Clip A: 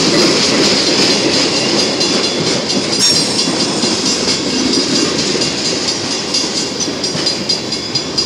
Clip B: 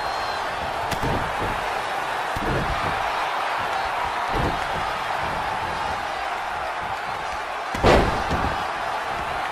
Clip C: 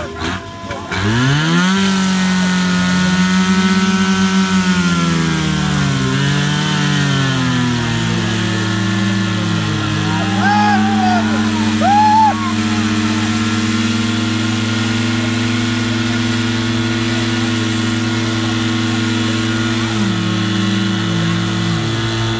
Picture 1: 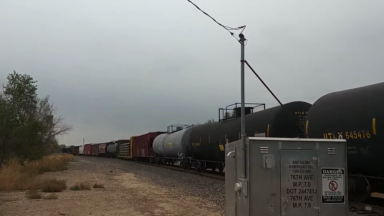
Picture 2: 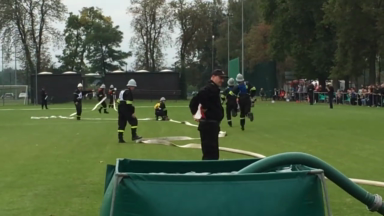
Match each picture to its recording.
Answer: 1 A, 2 C